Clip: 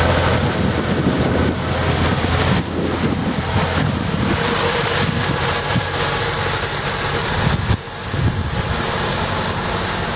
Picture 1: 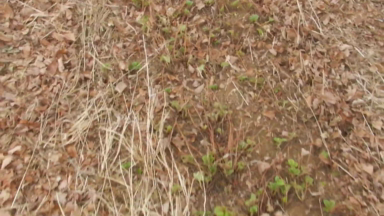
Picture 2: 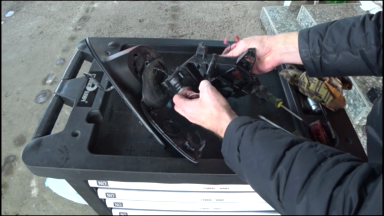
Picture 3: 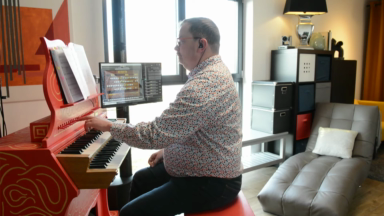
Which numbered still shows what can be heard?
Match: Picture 1